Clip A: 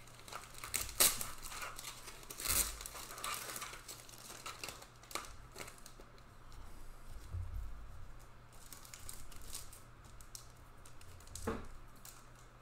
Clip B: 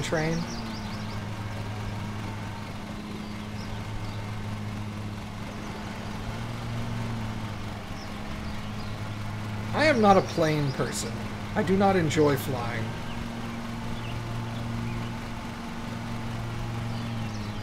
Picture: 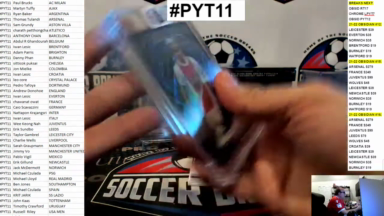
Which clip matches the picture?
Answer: A